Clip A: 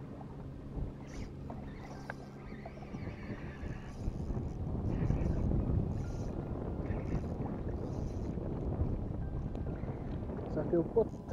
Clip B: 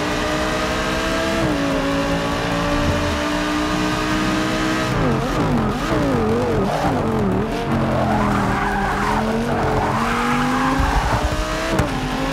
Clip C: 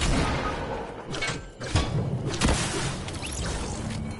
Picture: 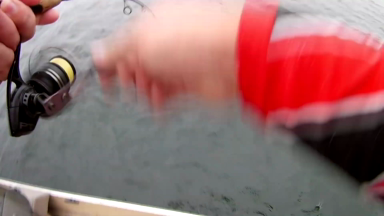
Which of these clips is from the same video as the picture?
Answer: A